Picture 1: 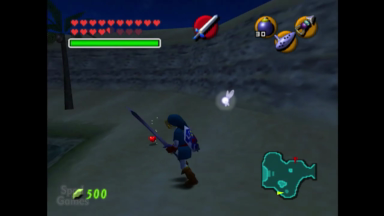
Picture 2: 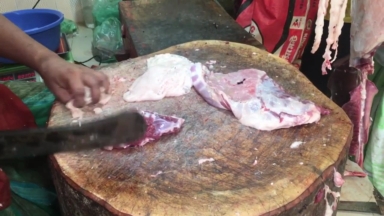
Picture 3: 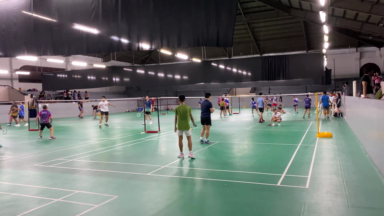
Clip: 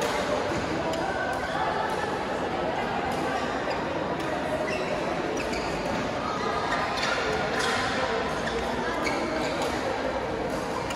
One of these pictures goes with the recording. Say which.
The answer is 3